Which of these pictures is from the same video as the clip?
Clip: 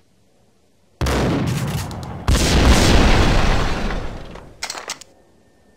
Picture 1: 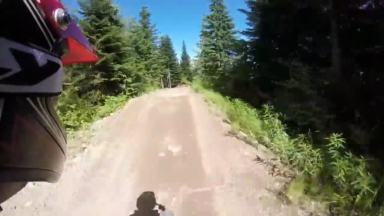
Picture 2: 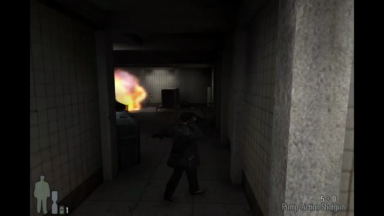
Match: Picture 2